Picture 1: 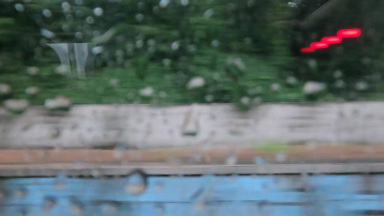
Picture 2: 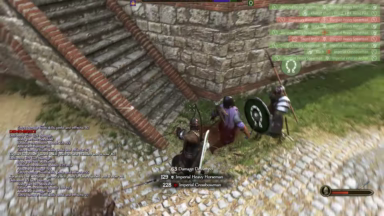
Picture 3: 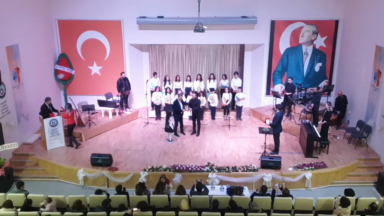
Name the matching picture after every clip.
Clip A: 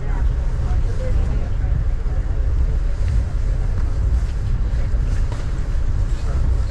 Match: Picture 1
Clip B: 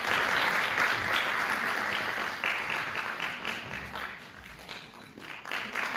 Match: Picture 3